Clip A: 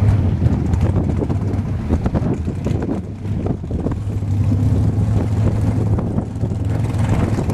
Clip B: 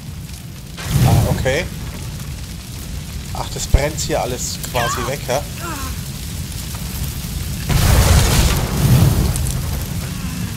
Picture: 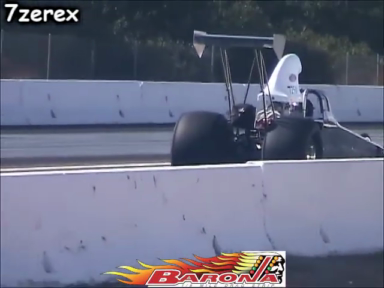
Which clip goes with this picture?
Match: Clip A